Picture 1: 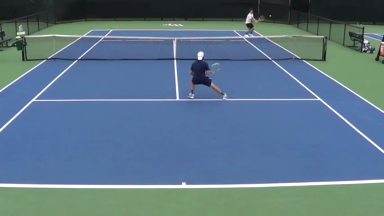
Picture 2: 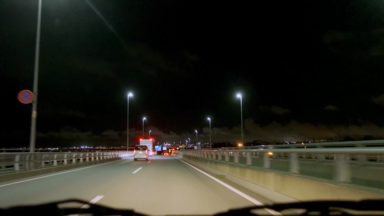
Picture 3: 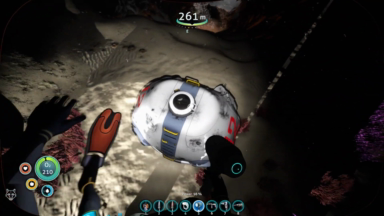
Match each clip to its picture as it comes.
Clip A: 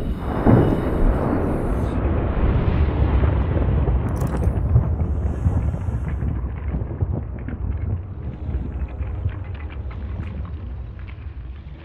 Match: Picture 3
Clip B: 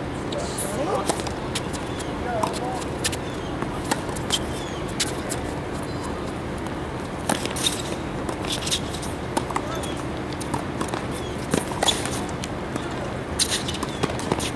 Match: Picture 1